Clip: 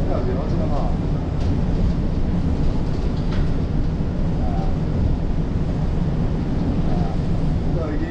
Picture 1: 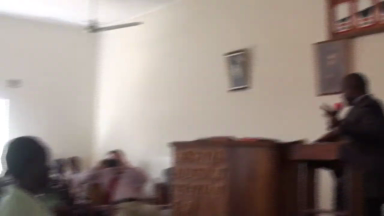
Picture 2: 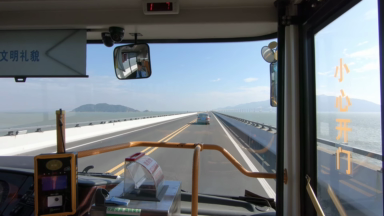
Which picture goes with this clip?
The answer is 2